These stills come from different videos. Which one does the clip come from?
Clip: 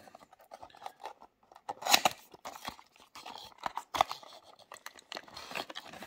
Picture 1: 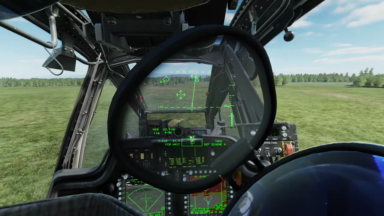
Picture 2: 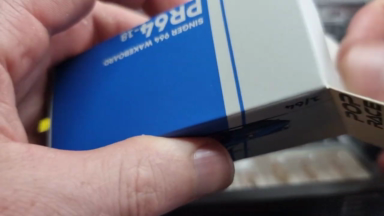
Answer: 2